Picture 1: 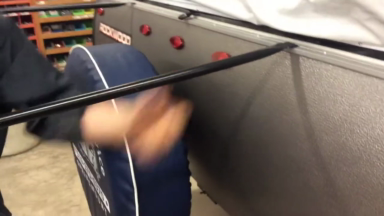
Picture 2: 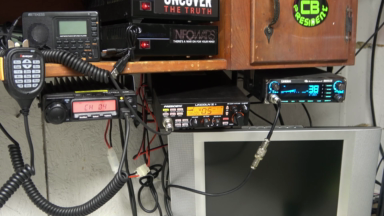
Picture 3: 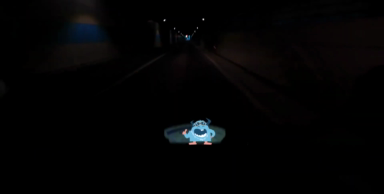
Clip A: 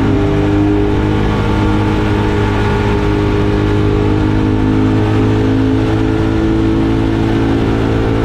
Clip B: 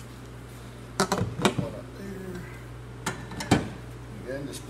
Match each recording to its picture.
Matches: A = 3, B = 1